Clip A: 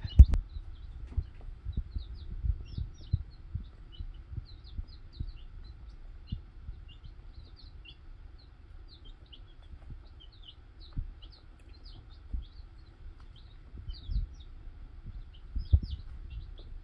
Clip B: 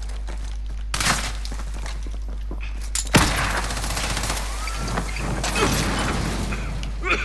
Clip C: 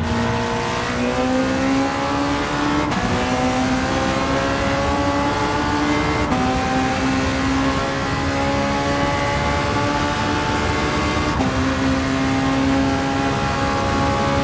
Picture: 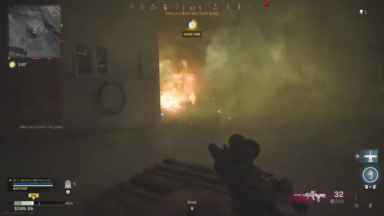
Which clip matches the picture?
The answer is B